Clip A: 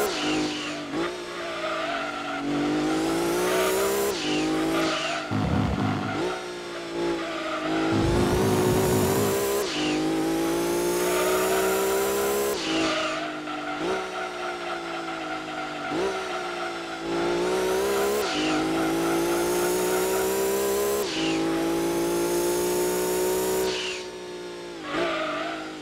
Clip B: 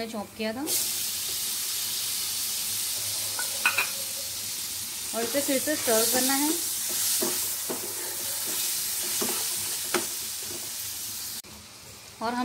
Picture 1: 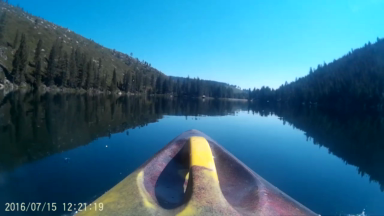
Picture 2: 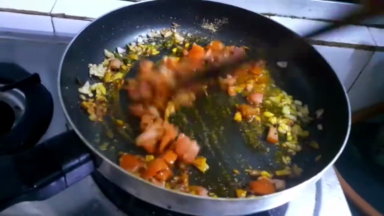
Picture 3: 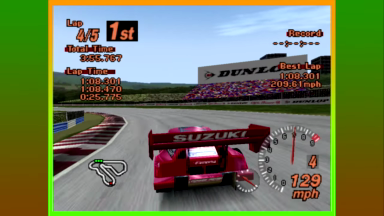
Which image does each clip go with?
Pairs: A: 3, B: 2